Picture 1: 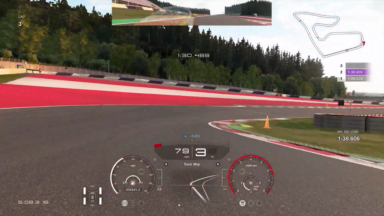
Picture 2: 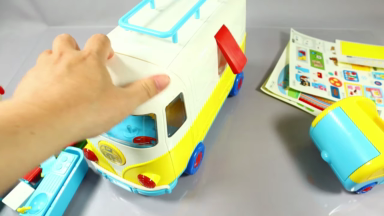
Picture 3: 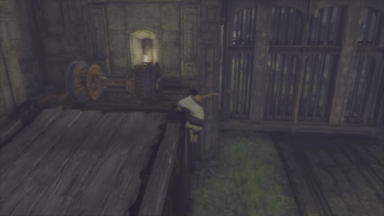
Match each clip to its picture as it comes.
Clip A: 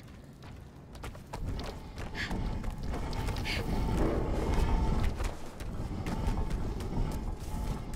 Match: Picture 3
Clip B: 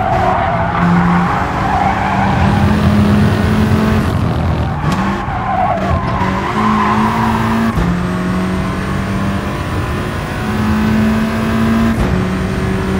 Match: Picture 1